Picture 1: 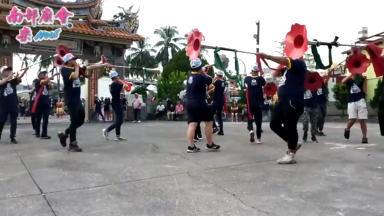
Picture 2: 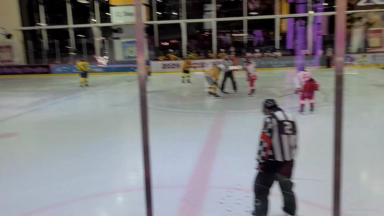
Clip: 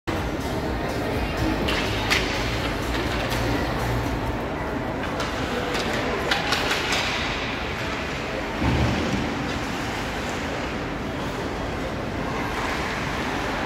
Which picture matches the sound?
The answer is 2